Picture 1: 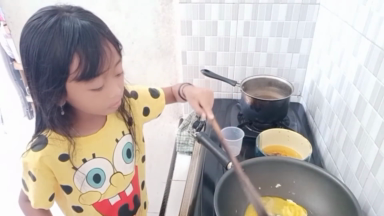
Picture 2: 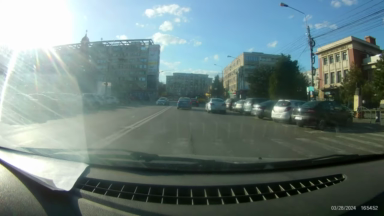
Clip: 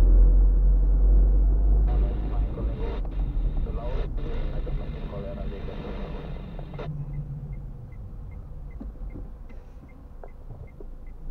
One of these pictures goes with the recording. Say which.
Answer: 2